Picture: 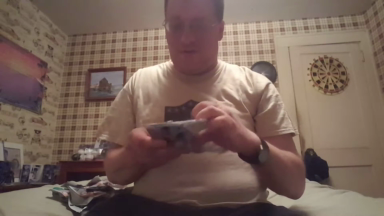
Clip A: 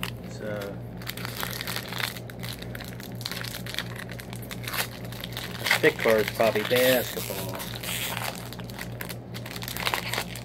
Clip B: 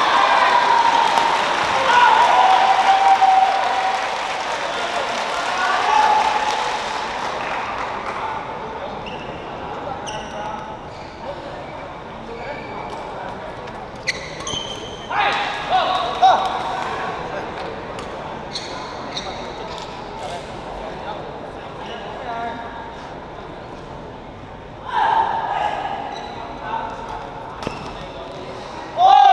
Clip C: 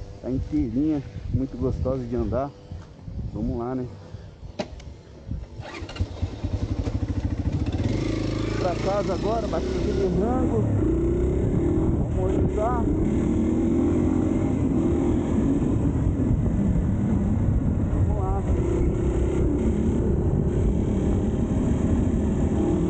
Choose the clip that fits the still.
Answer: A